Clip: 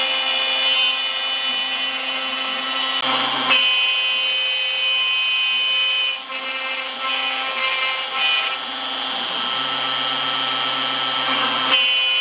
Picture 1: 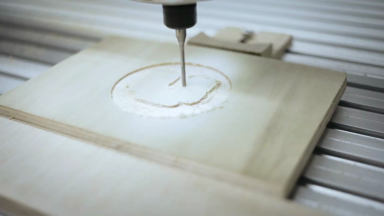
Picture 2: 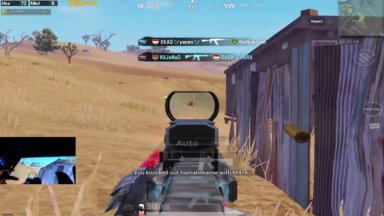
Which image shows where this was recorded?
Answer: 1